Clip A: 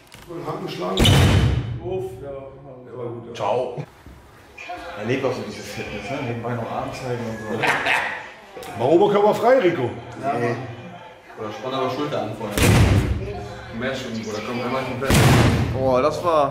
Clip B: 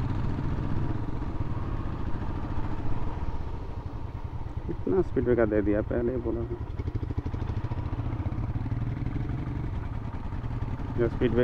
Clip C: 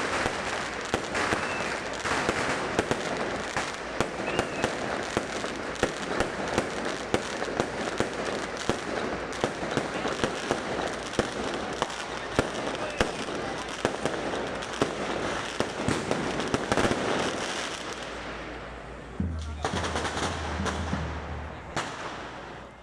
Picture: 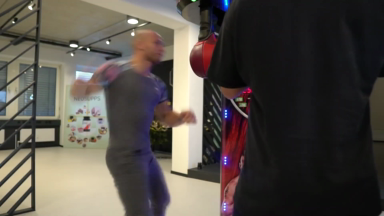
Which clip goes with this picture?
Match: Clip A